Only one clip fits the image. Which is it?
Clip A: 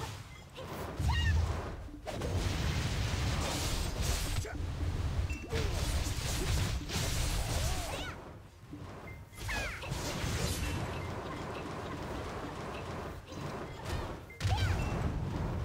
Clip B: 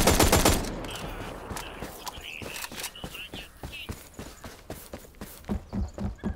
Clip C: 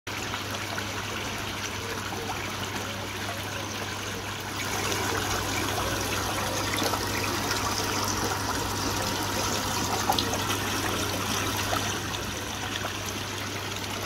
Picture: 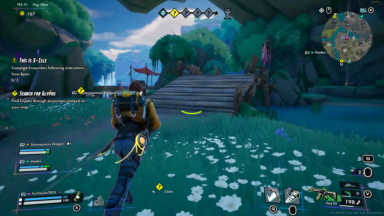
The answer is B